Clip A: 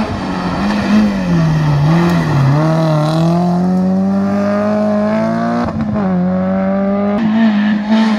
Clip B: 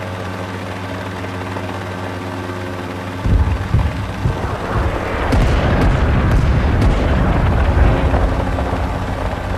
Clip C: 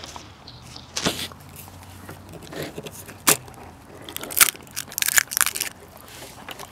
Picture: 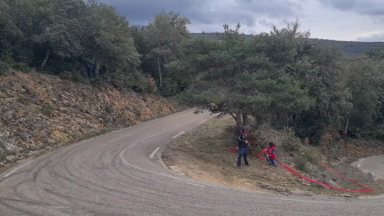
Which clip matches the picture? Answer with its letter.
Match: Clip A